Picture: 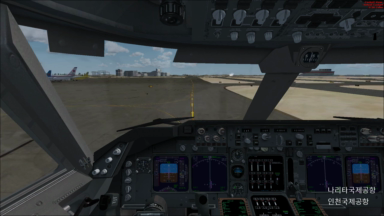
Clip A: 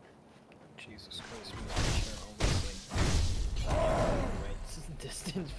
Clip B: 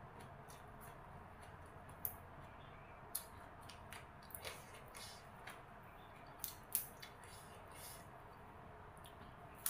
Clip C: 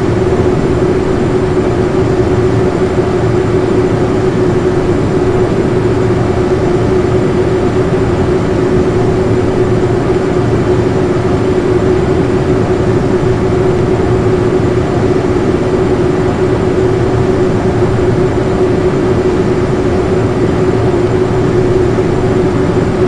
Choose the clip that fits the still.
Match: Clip C